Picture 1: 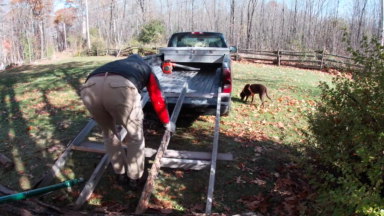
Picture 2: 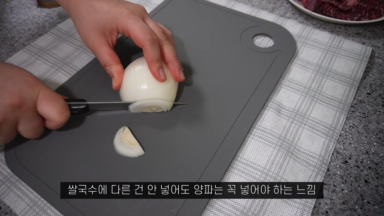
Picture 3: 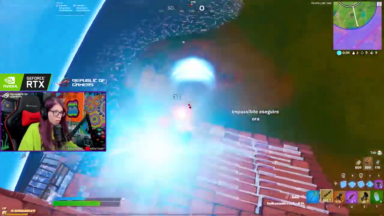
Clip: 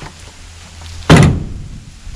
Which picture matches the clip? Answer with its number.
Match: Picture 1